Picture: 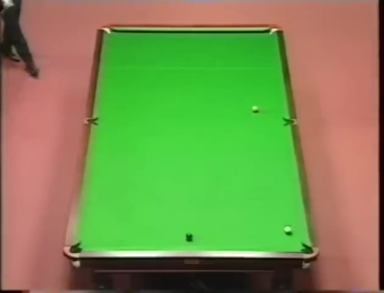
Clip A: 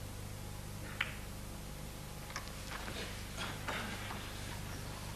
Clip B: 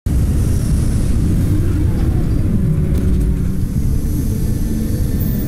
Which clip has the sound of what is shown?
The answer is A